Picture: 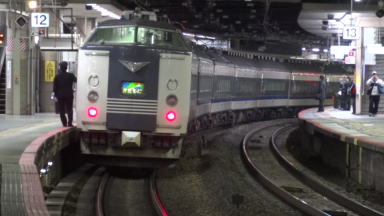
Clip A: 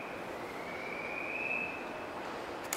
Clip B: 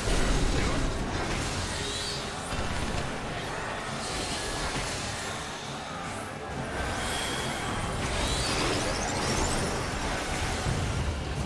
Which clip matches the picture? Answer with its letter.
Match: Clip A